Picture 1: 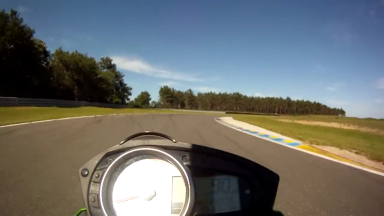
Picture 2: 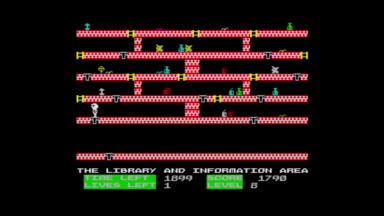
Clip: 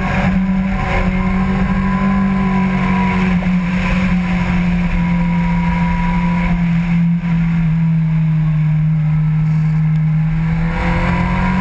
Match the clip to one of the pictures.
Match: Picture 1